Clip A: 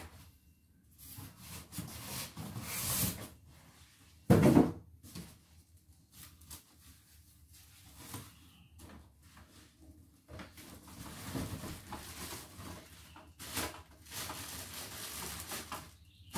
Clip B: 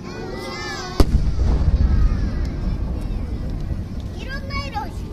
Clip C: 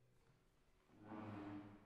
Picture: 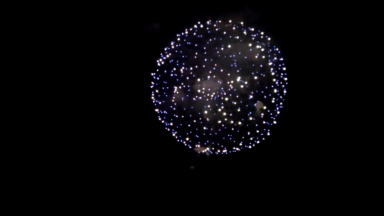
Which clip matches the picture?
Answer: B